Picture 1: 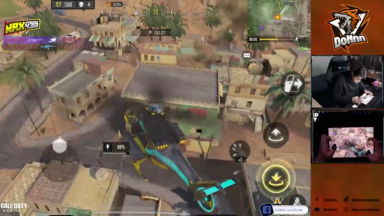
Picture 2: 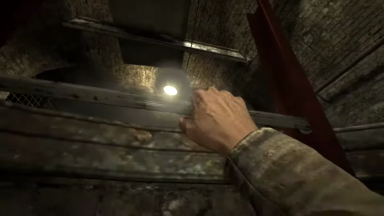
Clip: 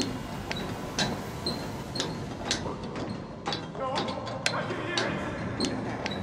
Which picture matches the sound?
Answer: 2